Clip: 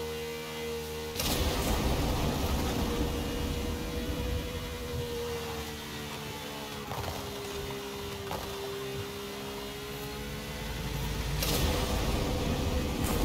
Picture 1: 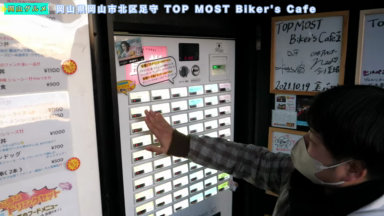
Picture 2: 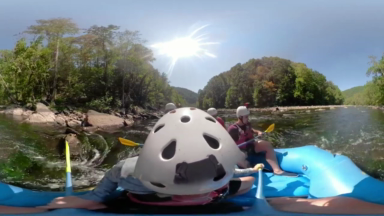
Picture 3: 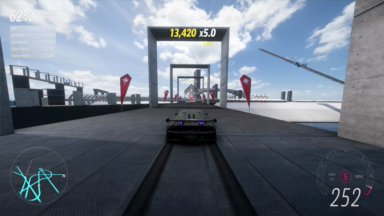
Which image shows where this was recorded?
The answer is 3